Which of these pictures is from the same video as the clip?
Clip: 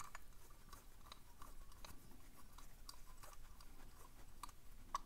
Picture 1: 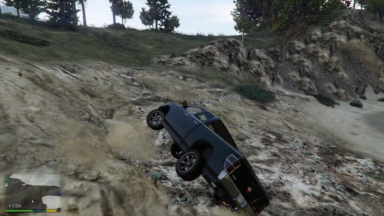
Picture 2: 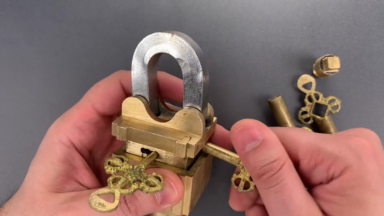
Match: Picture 2